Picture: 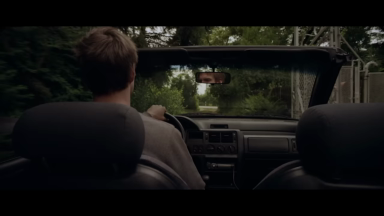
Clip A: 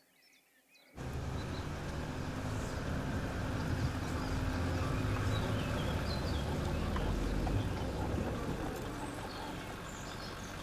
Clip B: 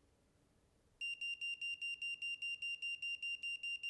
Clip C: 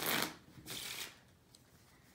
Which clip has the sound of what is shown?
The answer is A